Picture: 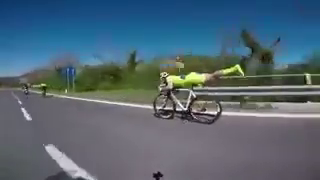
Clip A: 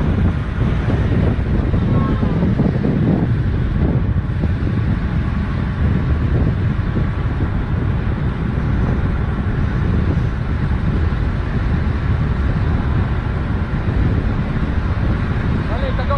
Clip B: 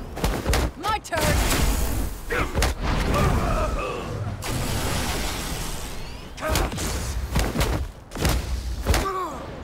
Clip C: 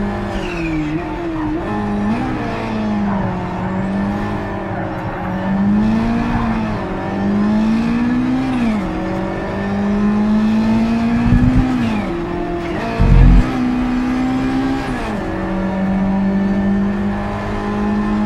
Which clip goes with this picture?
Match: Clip A